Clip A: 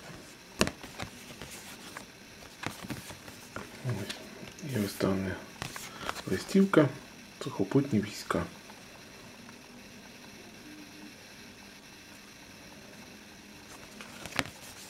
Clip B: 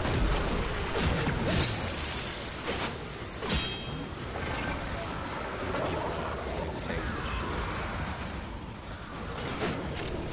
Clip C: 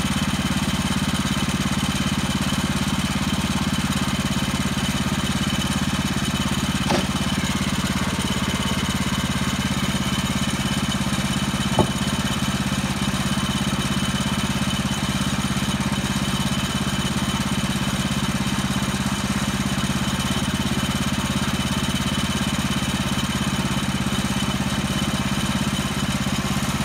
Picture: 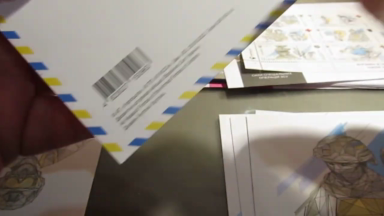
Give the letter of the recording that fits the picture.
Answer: A